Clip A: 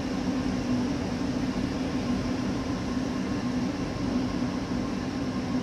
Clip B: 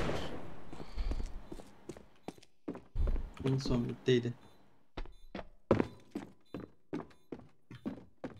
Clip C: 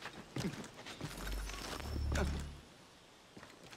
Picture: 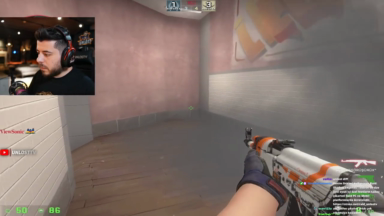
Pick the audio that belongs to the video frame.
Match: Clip B